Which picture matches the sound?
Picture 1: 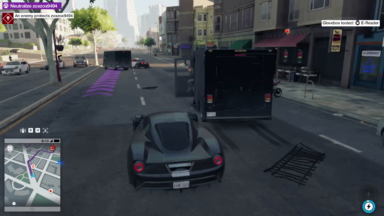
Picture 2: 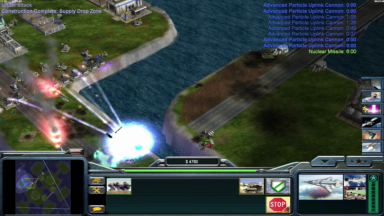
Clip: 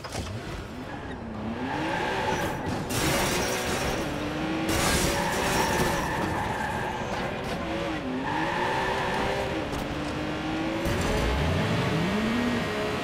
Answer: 1